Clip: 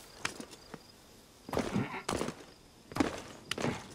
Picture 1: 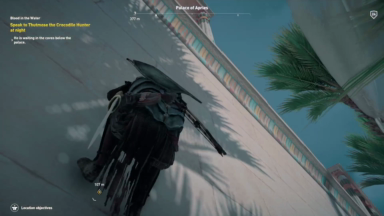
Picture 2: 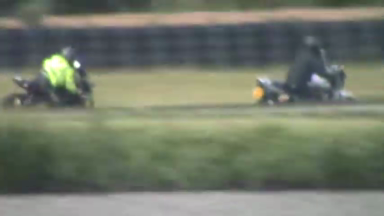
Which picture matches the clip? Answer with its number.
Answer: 1